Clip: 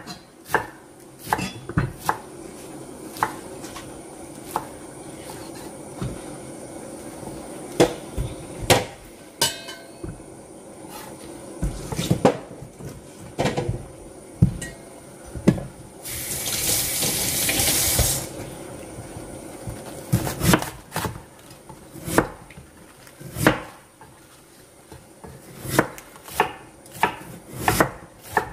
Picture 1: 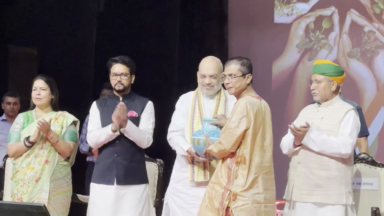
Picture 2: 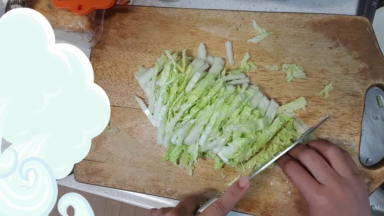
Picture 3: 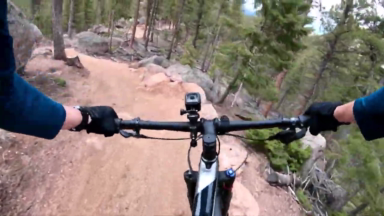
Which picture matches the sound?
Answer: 2